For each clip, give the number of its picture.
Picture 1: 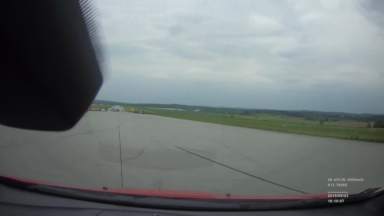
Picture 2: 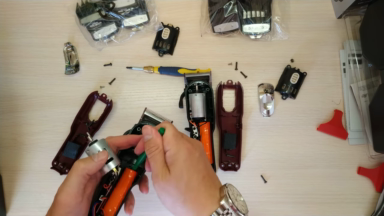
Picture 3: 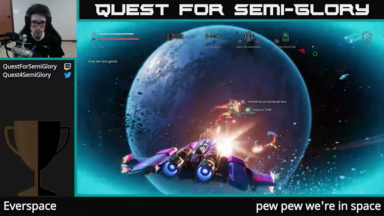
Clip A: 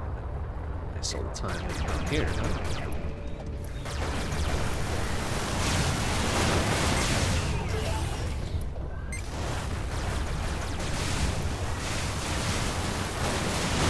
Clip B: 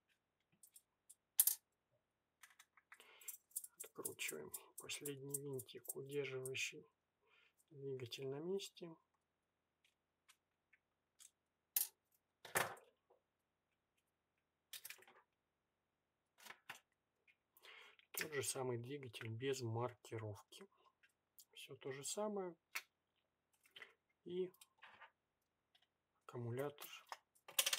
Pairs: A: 3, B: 2